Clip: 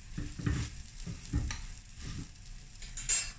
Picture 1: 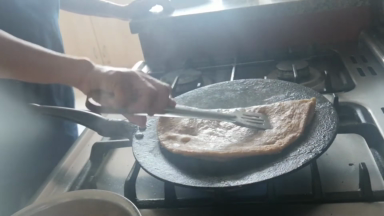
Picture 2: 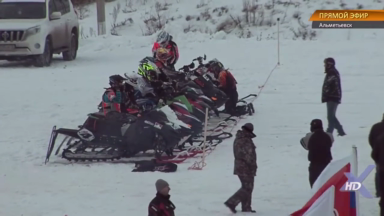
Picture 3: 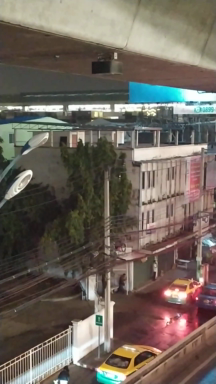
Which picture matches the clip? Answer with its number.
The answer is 1